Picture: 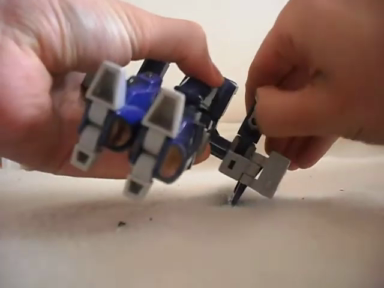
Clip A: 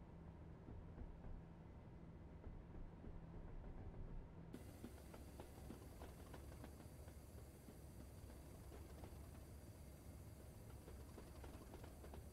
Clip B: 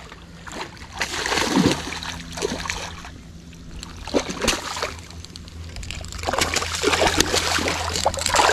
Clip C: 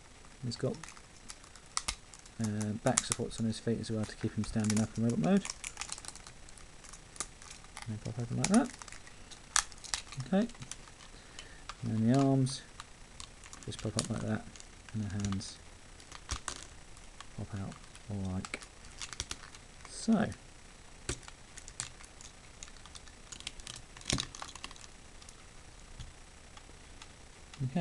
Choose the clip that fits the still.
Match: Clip C